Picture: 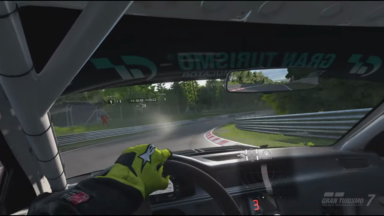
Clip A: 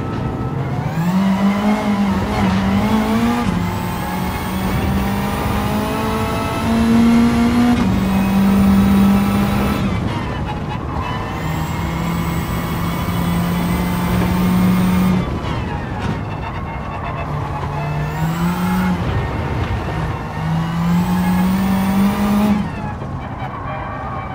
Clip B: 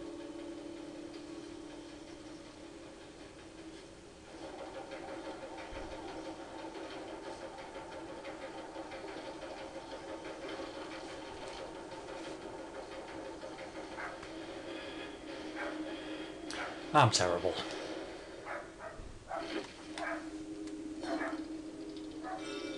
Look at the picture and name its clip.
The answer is A